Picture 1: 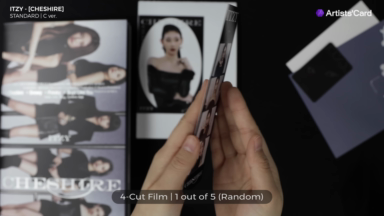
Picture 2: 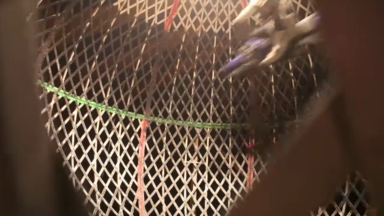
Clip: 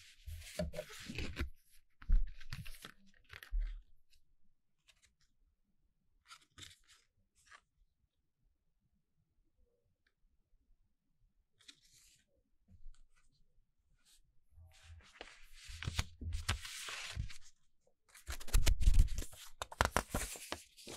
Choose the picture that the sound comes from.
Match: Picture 1